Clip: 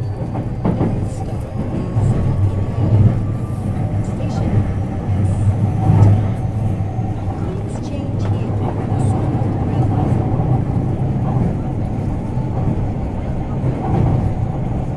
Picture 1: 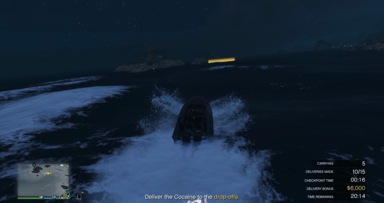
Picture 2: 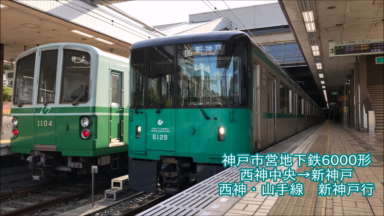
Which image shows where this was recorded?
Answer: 2